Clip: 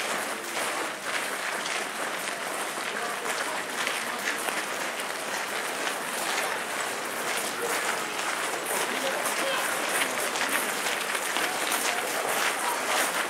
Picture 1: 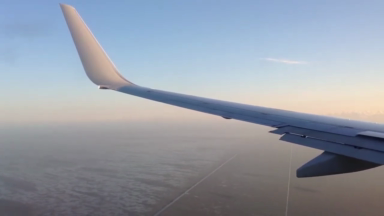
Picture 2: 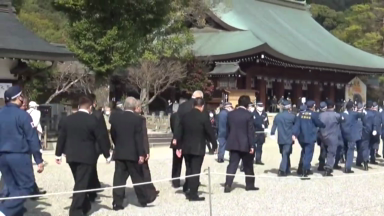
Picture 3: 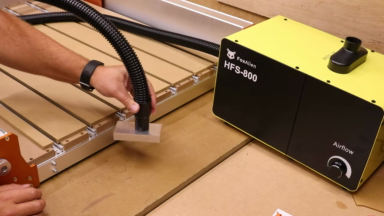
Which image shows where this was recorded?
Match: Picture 2